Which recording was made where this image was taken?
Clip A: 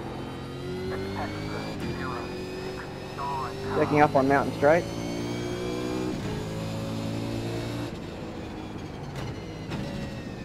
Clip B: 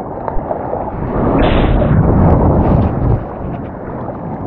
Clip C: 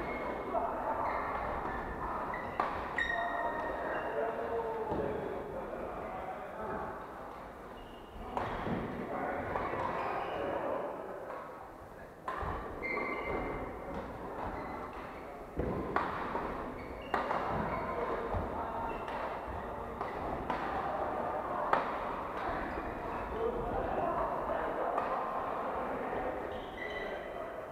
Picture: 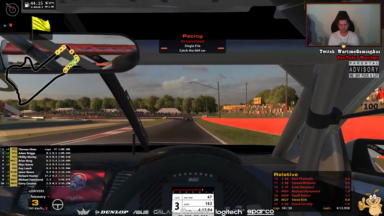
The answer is A